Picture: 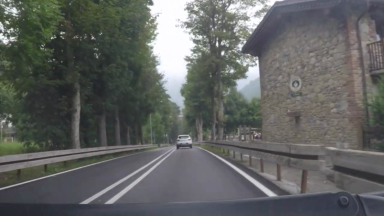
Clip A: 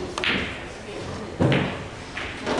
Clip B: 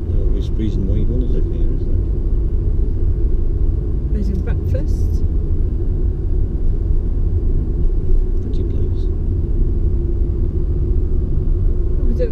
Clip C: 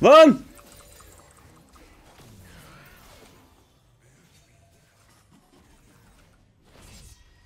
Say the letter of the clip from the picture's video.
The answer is B